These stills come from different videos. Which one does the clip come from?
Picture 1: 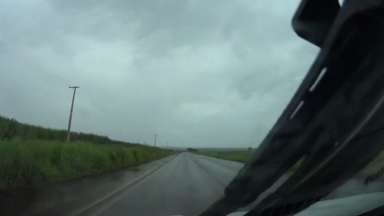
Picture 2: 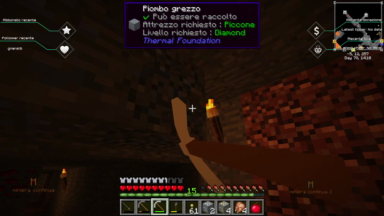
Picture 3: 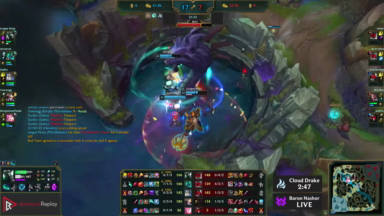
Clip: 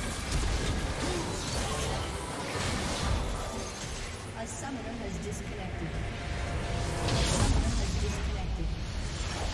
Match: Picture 3